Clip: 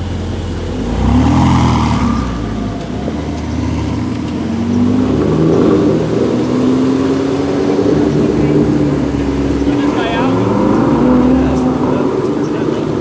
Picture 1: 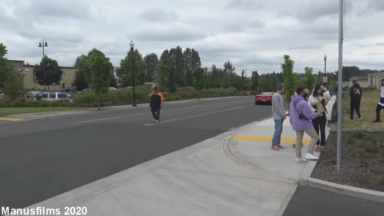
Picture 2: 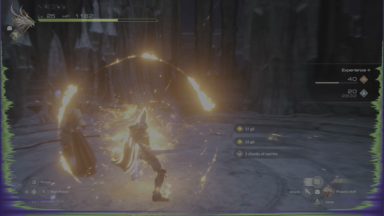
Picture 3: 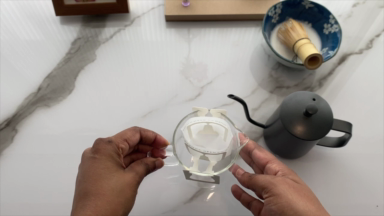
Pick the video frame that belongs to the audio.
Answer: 1